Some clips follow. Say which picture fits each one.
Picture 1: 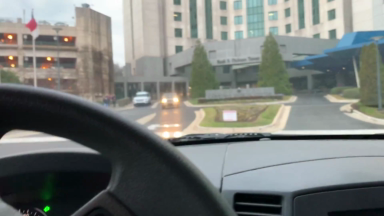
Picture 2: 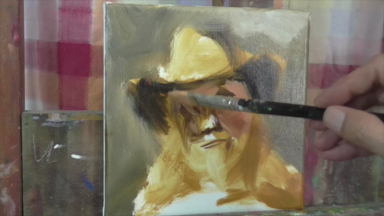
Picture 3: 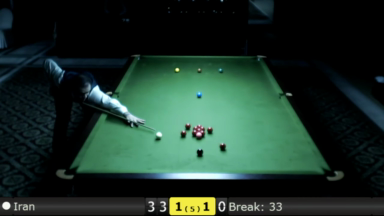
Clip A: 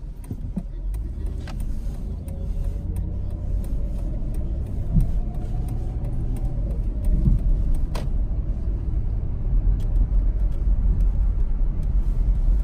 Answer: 1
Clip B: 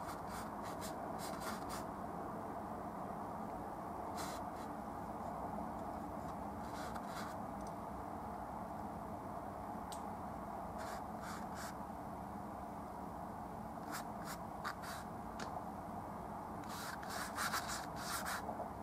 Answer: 2